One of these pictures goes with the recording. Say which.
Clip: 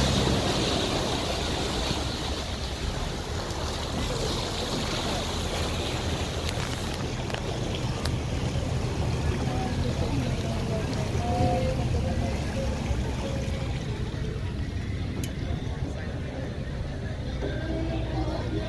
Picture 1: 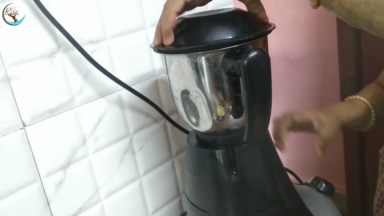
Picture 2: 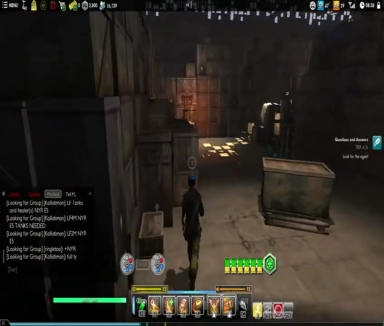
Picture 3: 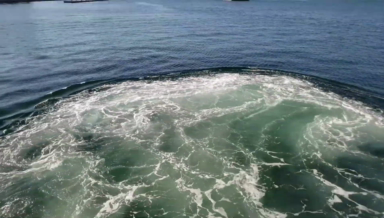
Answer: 3